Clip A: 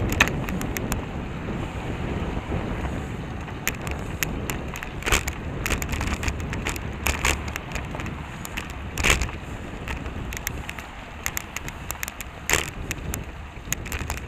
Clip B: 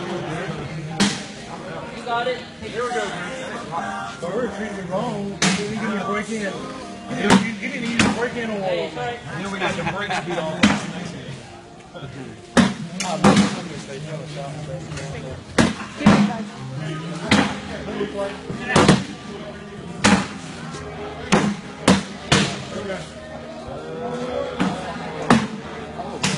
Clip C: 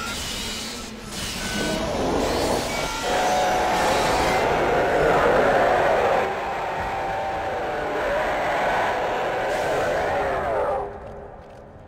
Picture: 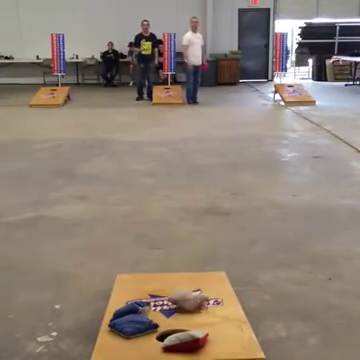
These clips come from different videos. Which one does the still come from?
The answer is B